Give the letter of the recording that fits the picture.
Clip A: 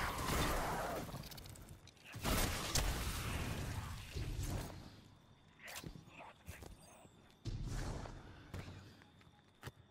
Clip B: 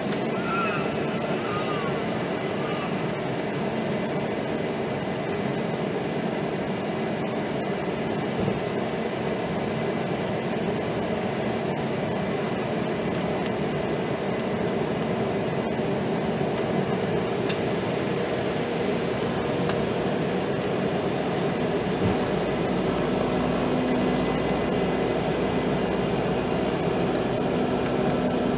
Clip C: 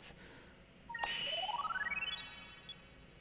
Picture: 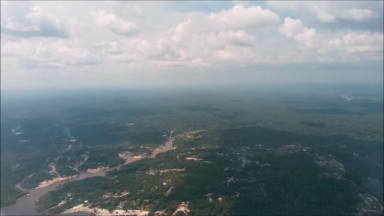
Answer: B